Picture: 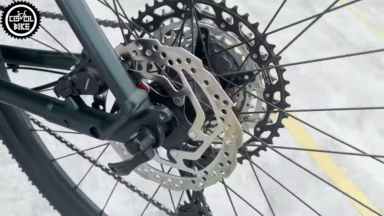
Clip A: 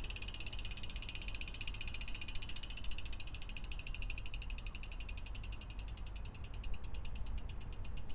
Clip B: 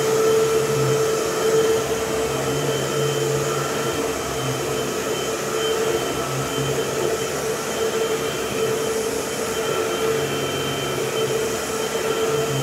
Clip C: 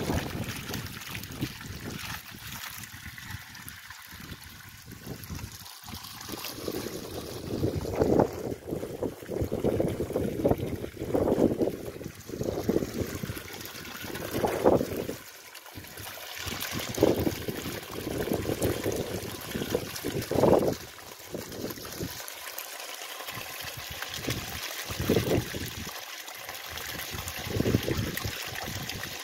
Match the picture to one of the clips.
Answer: A